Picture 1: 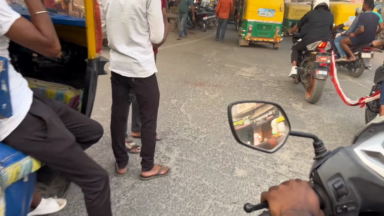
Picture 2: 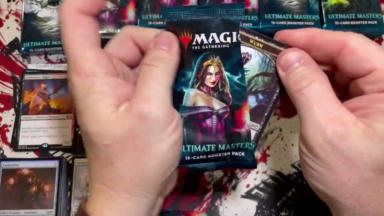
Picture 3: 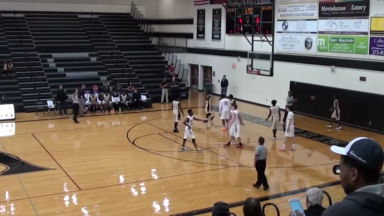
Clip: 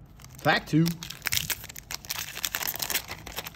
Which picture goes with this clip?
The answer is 2